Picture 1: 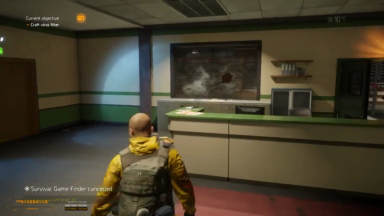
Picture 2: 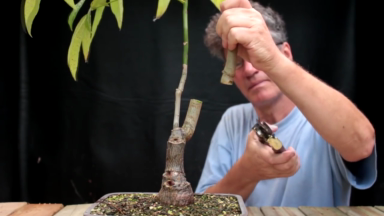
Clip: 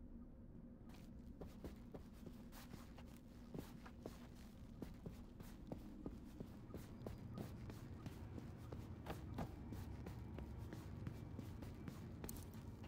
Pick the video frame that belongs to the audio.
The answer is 1